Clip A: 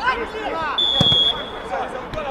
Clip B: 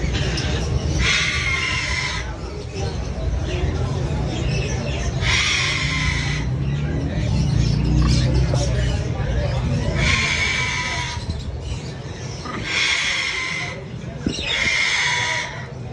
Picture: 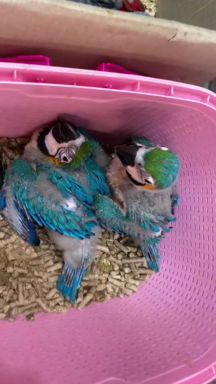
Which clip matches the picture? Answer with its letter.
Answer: B